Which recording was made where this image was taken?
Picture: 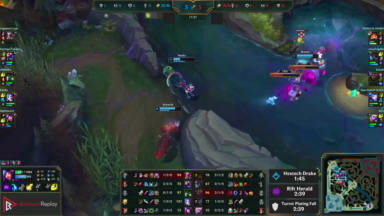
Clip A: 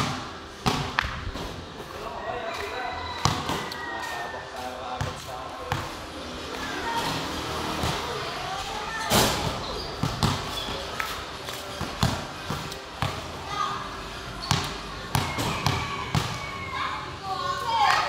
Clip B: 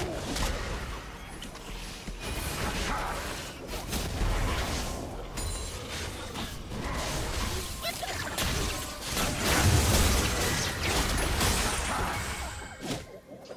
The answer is B